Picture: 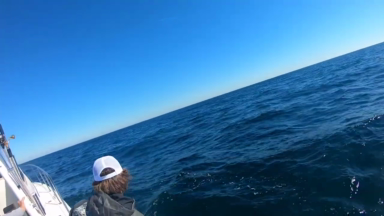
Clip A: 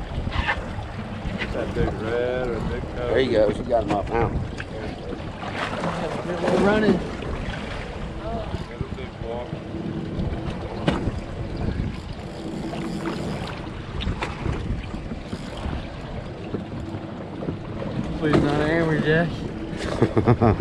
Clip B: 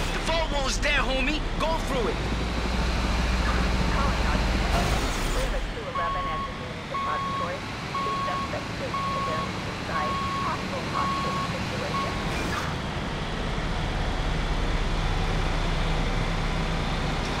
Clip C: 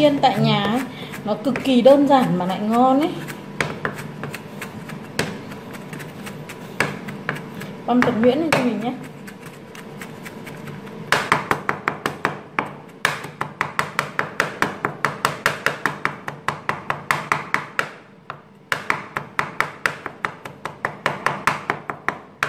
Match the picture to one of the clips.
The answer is A